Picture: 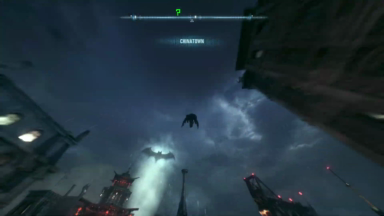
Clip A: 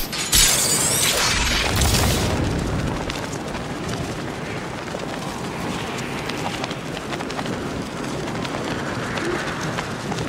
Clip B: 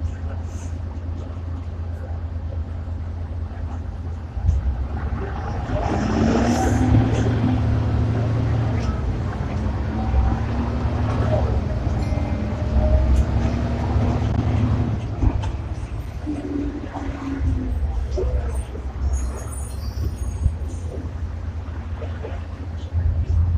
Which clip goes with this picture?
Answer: A